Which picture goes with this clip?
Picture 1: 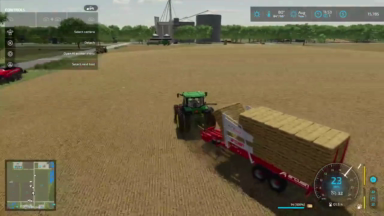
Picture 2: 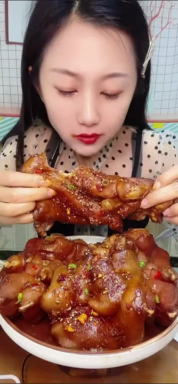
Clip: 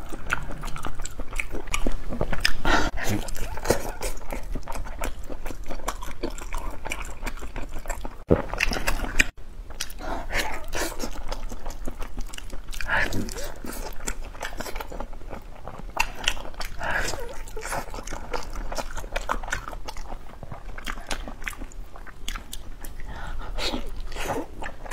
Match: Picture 2